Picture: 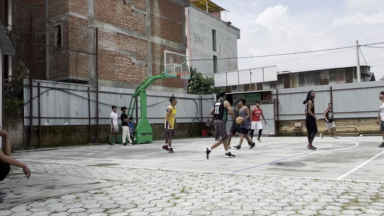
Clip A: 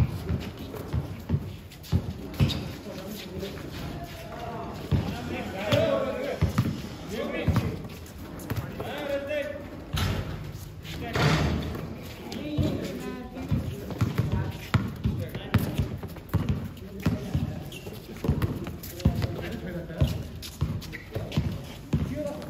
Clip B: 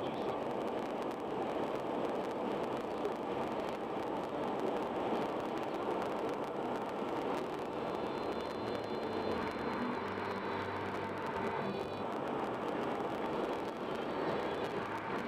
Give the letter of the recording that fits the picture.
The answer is A